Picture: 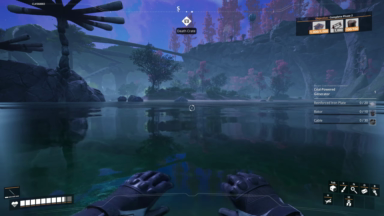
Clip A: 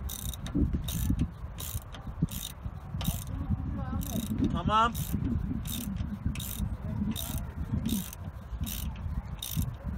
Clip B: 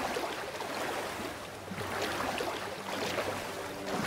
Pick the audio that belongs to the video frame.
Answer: B